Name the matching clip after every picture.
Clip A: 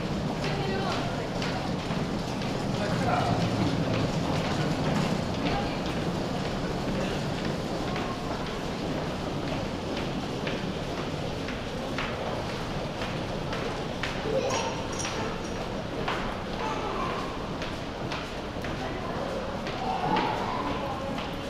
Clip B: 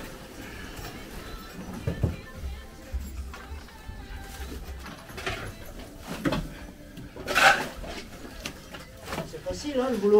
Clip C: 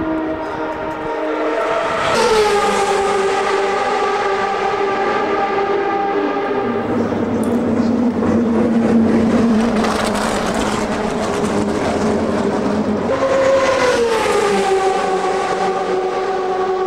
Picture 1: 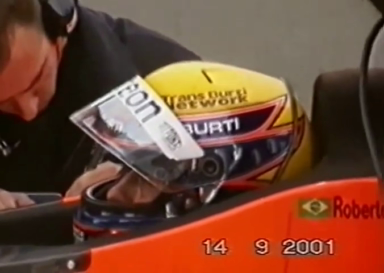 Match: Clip C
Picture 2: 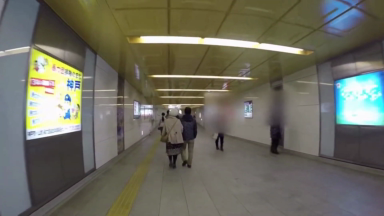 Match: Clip A